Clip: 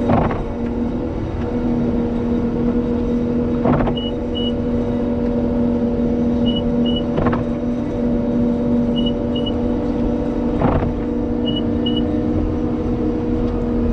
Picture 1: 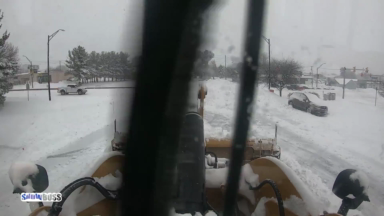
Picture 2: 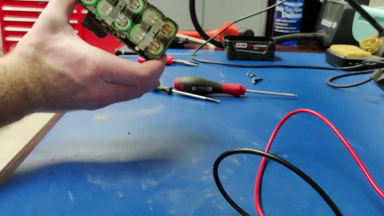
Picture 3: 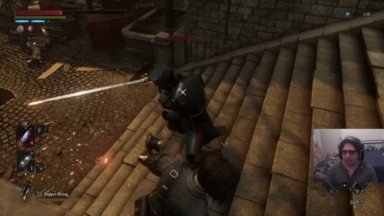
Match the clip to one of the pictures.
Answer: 1